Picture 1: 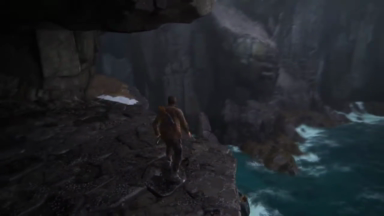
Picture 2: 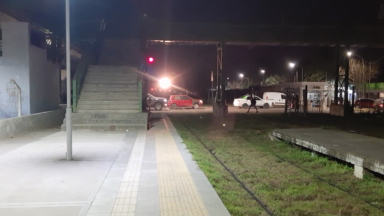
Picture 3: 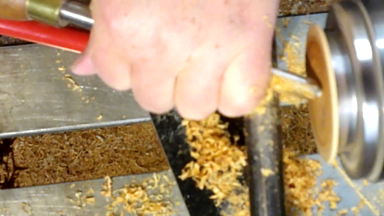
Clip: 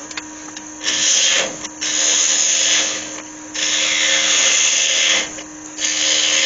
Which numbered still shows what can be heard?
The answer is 3